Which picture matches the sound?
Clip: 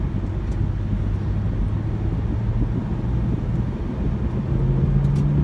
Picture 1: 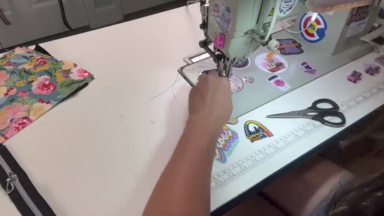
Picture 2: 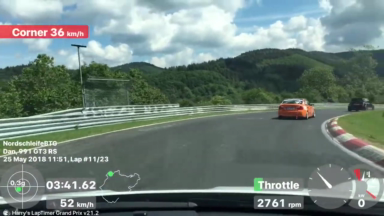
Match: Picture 2